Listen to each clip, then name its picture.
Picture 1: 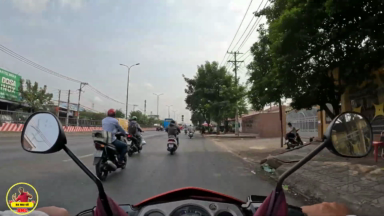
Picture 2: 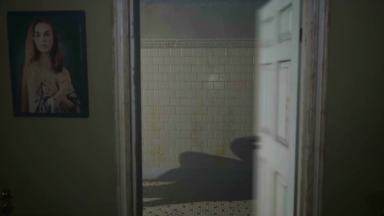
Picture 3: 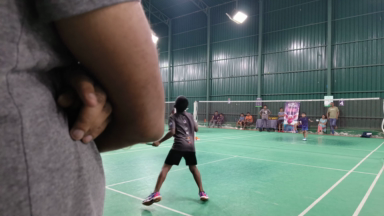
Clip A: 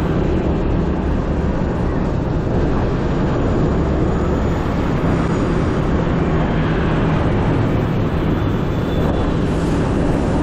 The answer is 1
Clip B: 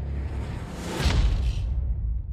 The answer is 2